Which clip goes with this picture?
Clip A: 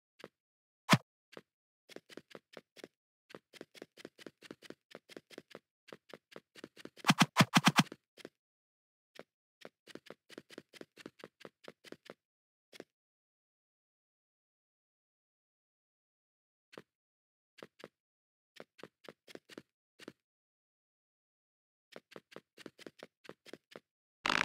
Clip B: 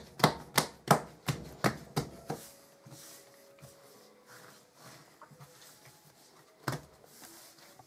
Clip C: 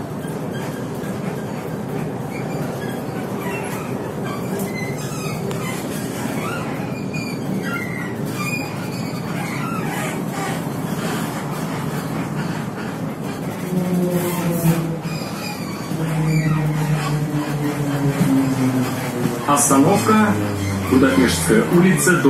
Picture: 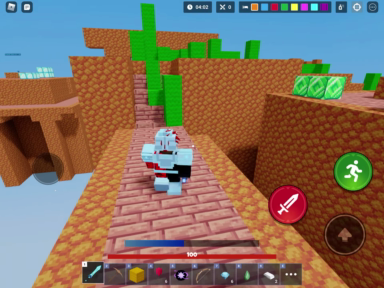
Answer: A